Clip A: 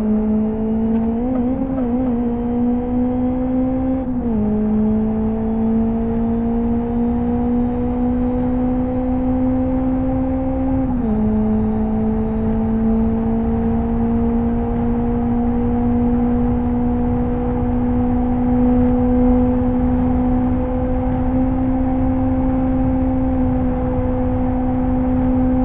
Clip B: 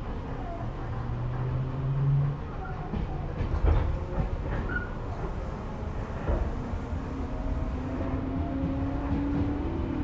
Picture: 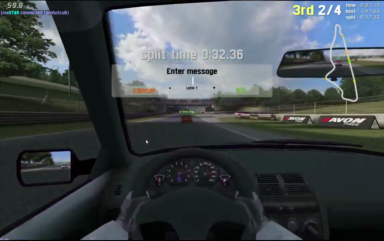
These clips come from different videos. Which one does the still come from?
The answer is A